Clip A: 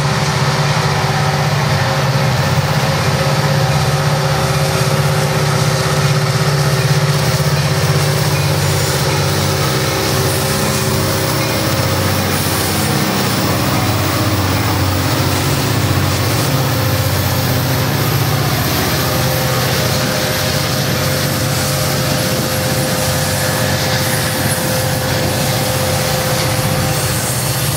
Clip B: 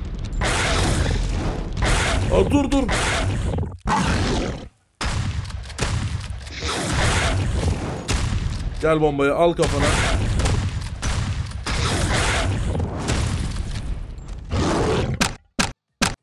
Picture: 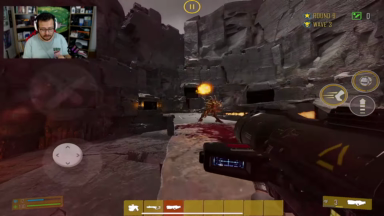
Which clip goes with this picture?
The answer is B